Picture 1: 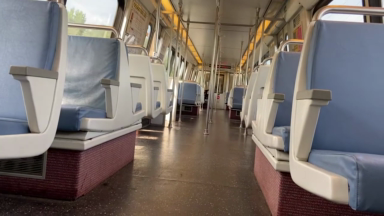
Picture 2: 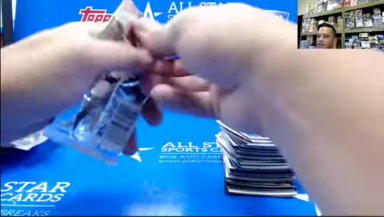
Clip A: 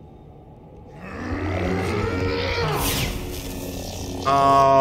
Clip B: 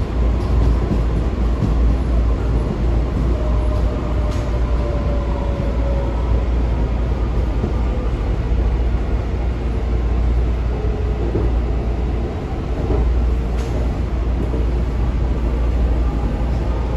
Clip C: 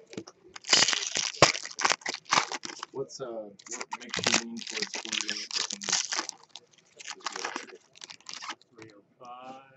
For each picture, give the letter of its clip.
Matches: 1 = B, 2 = C